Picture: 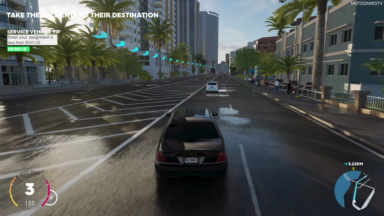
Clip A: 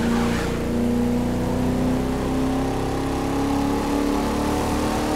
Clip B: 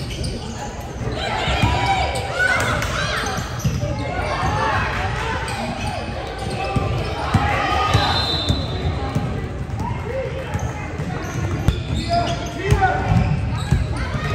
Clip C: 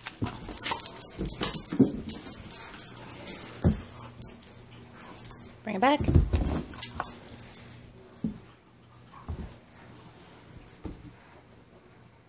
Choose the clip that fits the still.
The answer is A